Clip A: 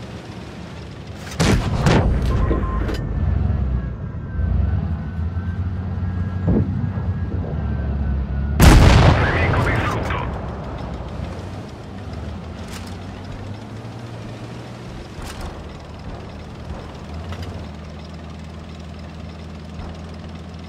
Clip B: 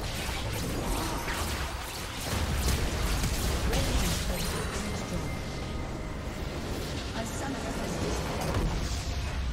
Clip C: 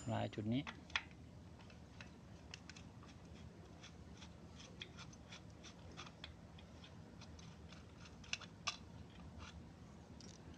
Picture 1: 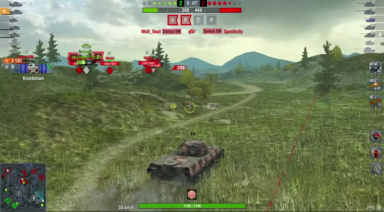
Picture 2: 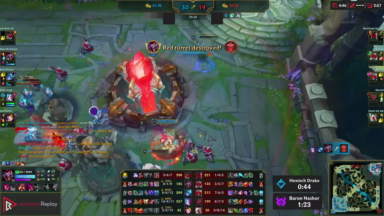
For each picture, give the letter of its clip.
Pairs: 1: A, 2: B